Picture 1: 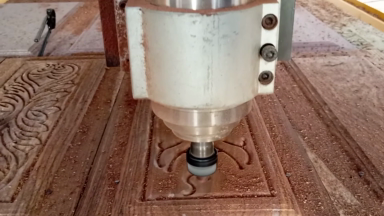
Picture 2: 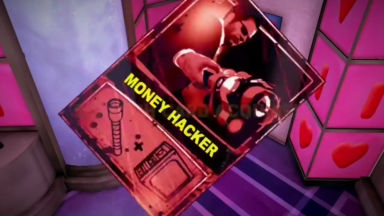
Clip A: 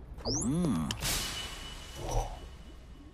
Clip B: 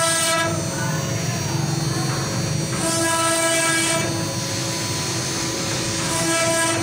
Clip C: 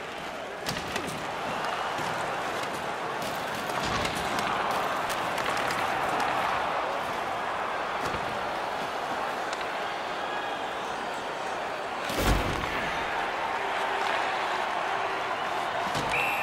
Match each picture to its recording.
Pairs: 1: B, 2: A